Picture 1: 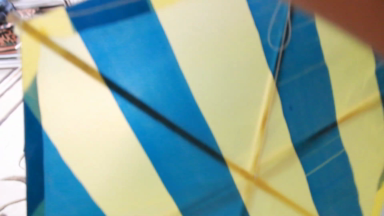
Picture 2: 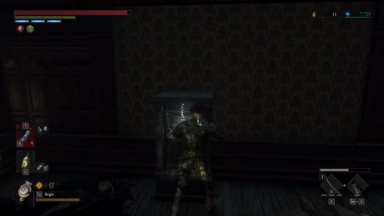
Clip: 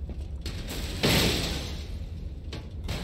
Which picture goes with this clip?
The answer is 2